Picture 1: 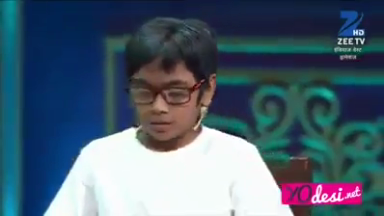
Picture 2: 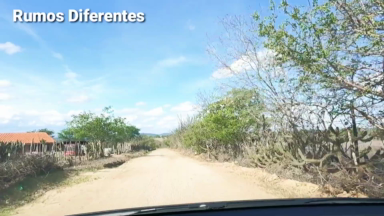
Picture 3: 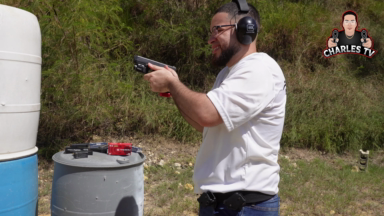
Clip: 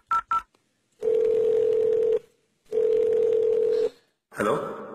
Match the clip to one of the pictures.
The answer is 1